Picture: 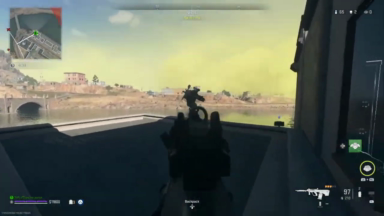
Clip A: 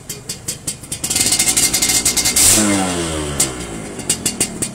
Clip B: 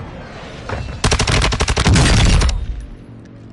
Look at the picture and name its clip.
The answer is B